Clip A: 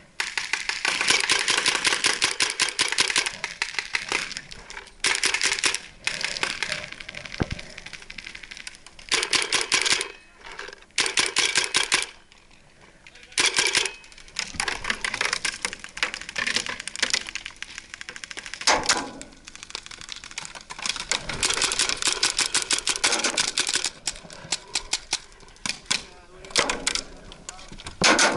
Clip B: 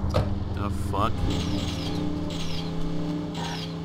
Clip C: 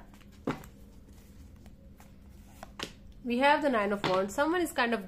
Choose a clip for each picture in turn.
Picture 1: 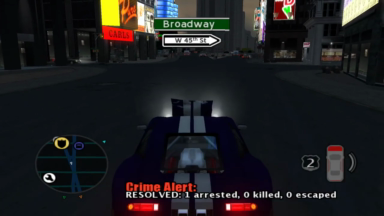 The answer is B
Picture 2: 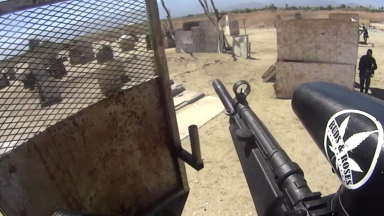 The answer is A